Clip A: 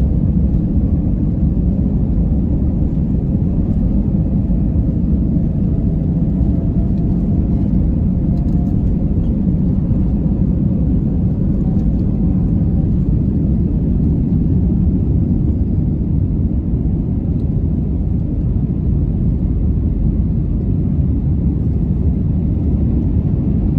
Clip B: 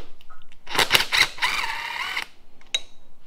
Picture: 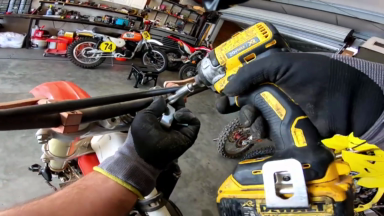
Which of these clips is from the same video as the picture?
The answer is B